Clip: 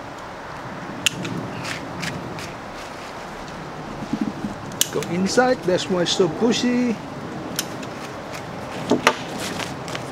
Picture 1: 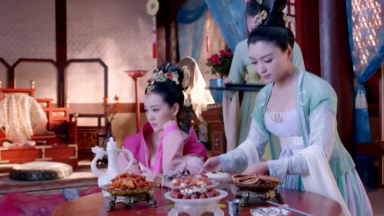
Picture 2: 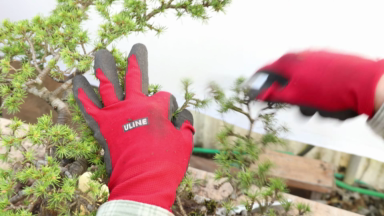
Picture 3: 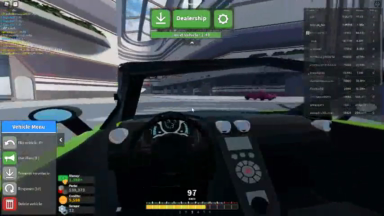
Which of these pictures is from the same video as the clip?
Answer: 2